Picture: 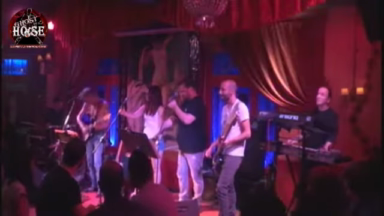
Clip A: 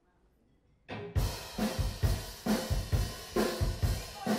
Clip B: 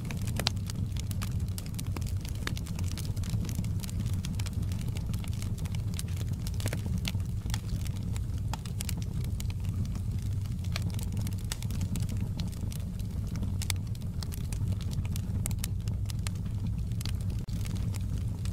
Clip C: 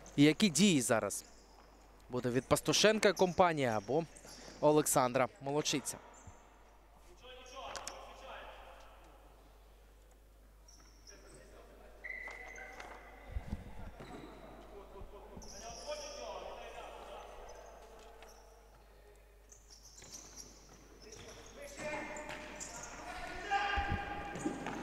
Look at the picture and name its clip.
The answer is A